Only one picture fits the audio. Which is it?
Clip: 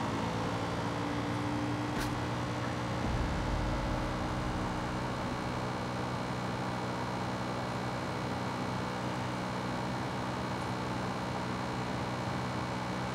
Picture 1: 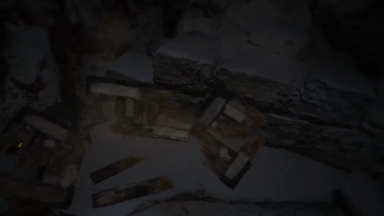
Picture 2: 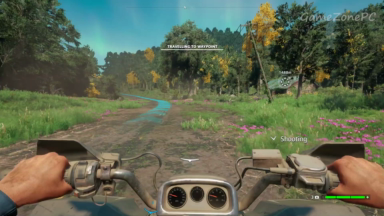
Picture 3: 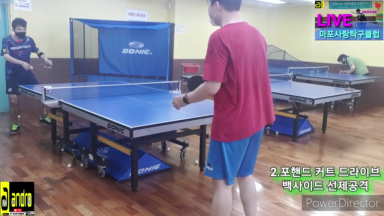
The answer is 2